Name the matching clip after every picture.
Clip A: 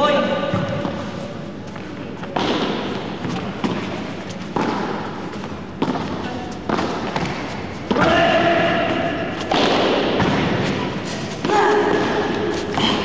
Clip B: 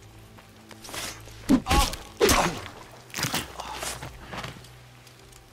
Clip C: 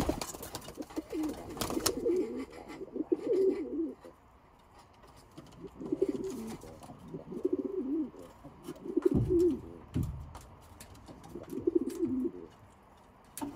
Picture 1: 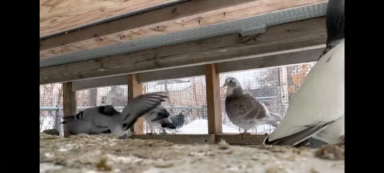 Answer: C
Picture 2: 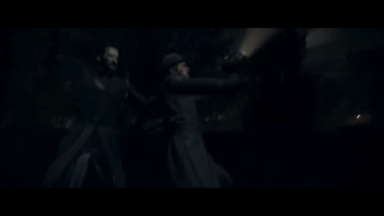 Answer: B